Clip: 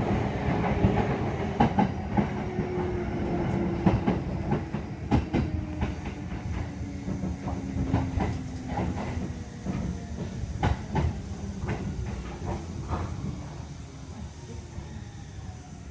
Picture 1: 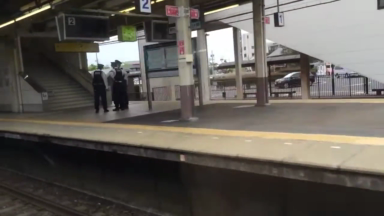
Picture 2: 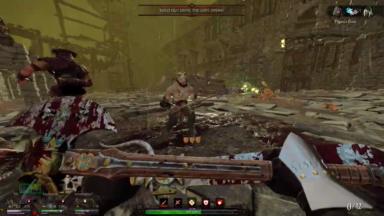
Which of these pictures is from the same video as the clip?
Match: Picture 1